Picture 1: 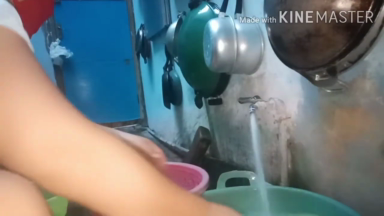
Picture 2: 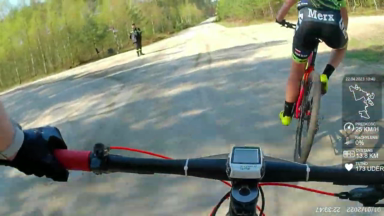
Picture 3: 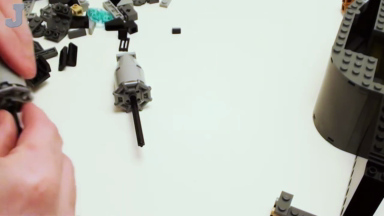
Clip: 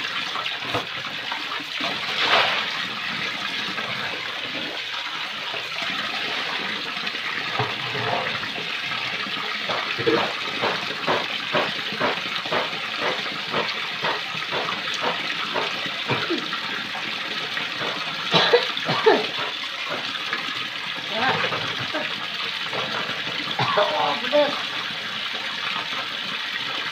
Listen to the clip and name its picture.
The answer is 1